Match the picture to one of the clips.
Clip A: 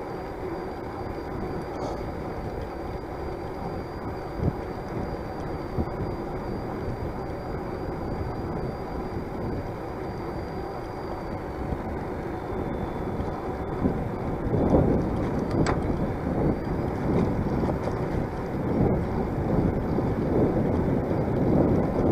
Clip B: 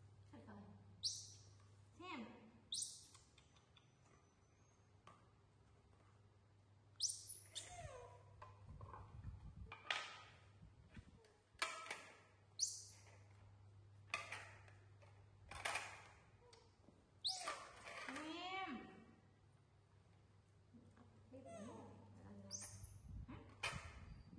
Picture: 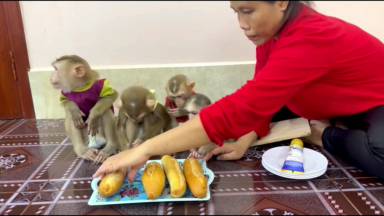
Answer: B